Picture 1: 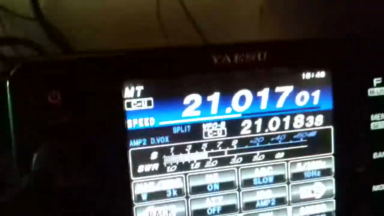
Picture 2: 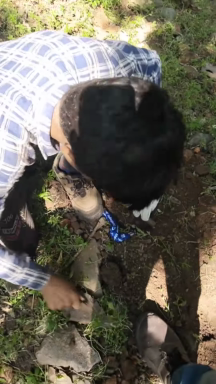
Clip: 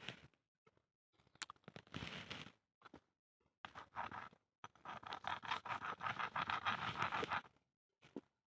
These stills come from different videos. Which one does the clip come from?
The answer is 2